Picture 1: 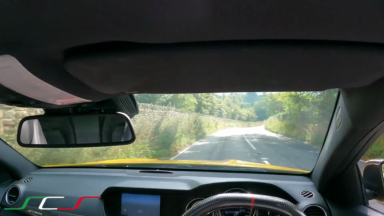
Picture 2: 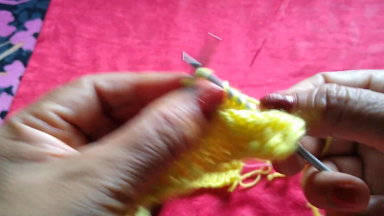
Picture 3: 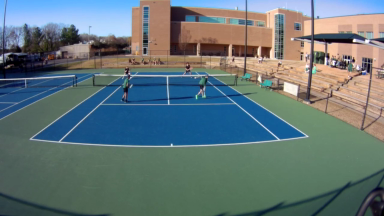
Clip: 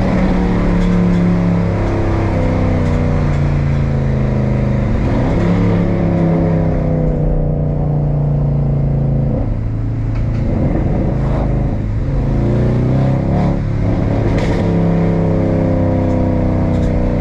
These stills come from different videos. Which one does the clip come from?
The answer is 1